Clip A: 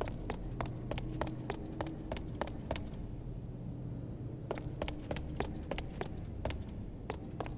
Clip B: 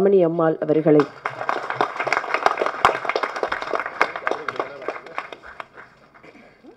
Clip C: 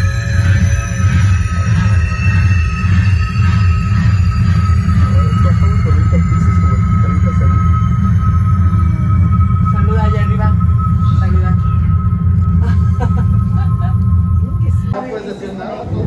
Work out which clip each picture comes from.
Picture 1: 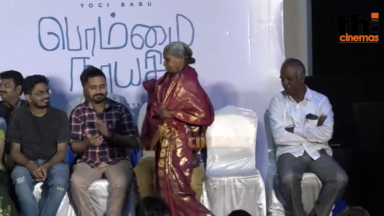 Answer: B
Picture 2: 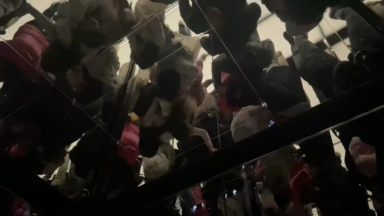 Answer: C